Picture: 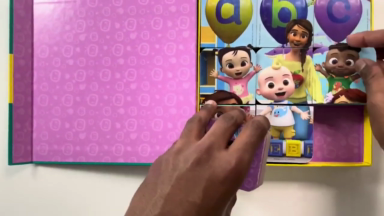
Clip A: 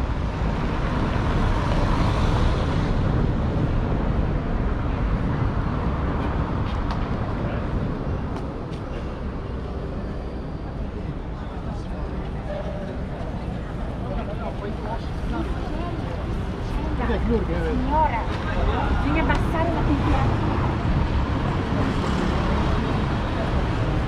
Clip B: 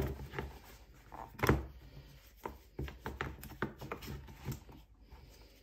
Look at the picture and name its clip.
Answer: B